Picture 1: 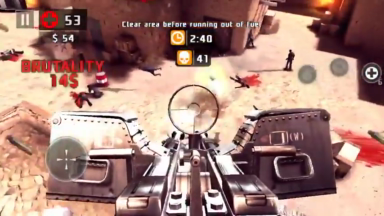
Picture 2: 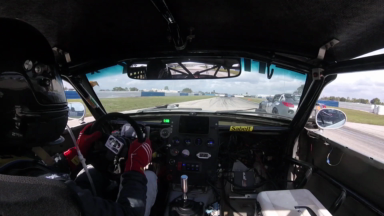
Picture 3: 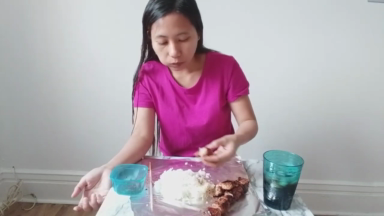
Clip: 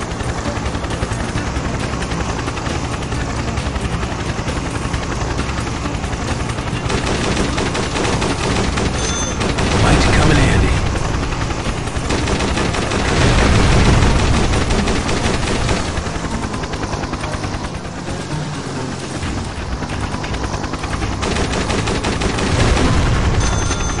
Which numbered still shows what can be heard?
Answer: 1